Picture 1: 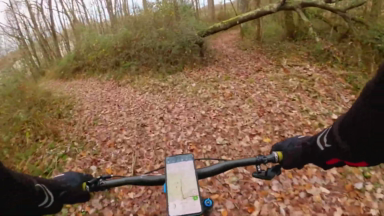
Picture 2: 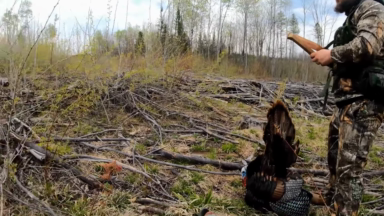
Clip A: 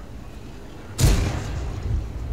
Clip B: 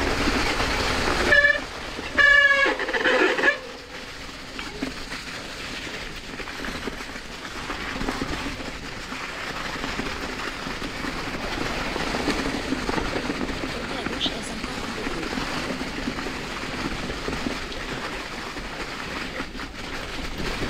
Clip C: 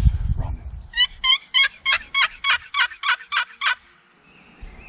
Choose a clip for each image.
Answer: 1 B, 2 C